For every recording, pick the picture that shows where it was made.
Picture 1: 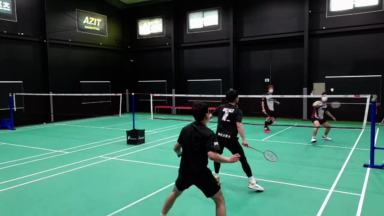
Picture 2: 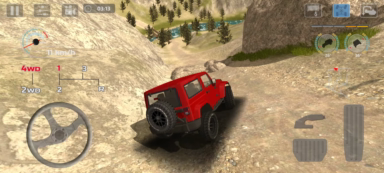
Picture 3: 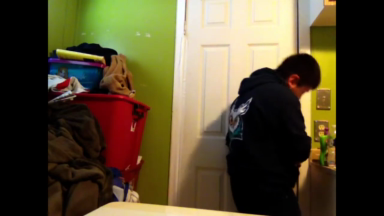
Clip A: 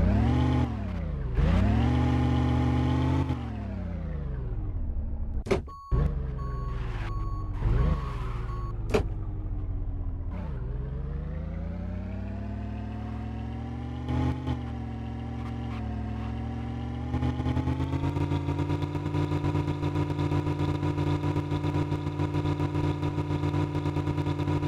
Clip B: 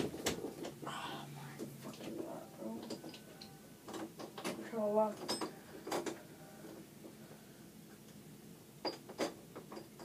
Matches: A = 2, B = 3